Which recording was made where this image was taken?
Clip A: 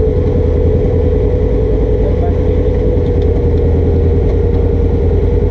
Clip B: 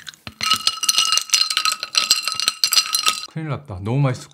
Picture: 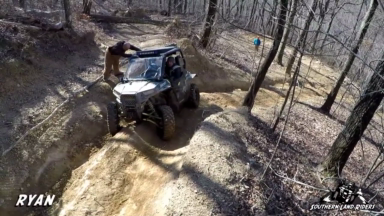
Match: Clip A